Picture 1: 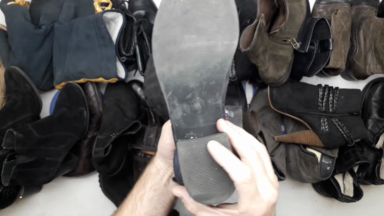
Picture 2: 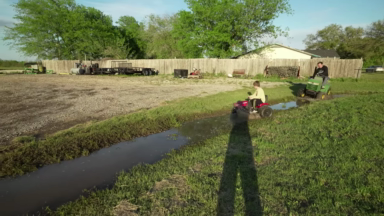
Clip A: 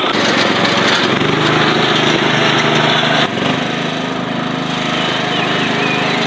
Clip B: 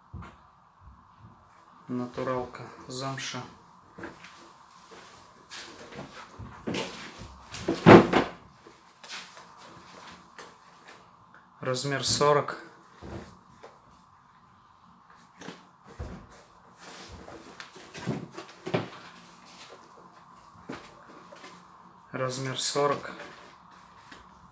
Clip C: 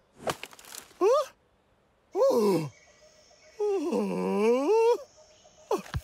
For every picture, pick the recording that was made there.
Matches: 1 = B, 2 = A